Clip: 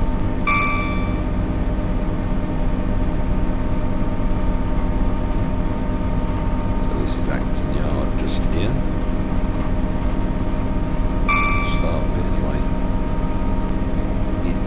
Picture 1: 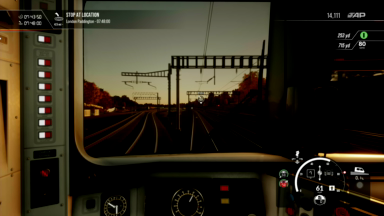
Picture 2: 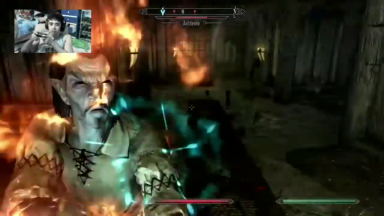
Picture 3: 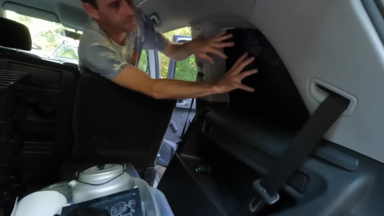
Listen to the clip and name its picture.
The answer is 1